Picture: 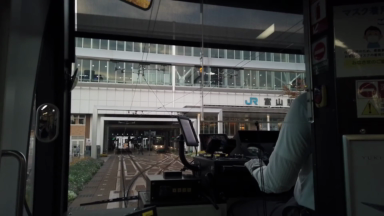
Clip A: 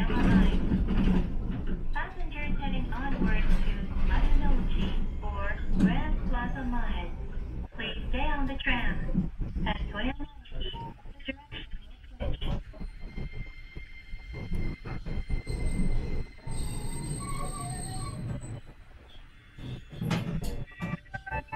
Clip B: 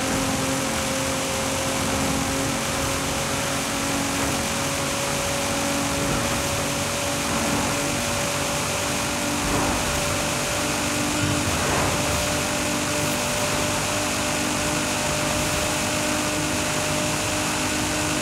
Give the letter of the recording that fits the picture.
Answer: A